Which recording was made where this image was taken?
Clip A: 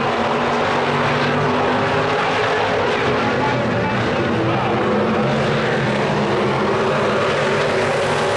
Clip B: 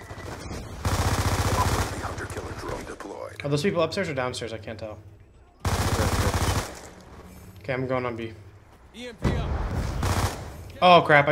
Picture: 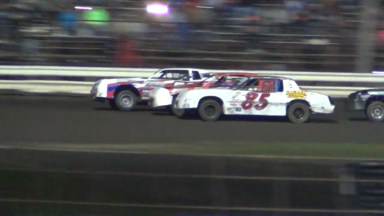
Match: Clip A